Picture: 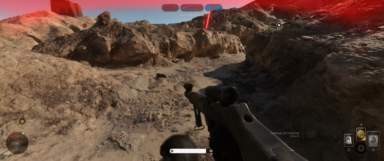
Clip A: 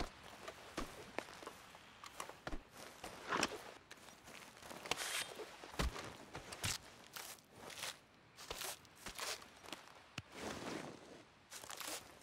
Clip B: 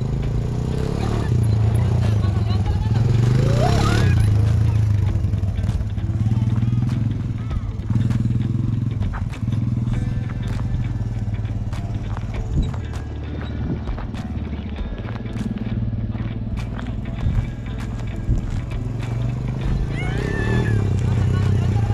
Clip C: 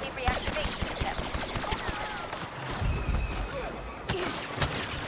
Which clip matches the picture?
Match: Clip C